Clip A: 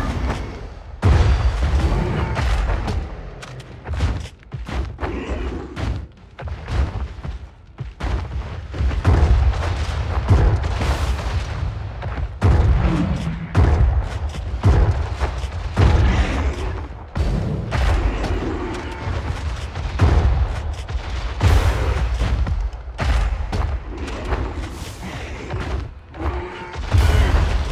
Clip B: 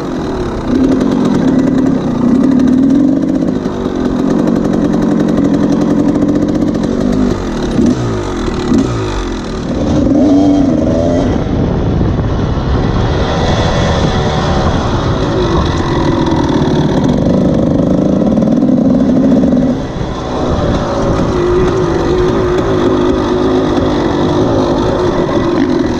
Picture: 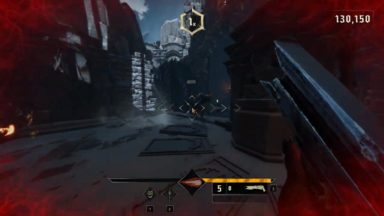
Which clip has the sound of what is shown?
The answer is A